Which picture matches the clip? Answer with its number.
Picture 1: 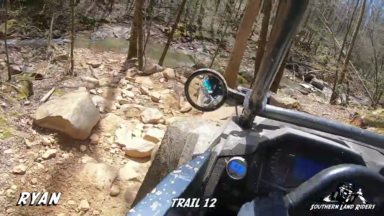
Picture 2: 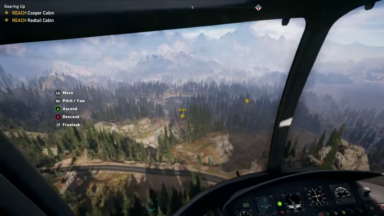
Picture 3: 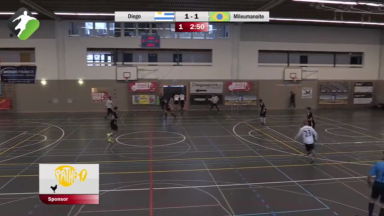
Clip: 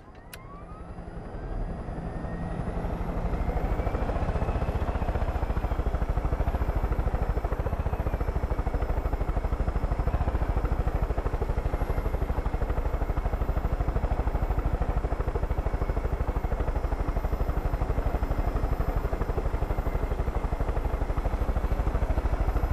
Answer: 2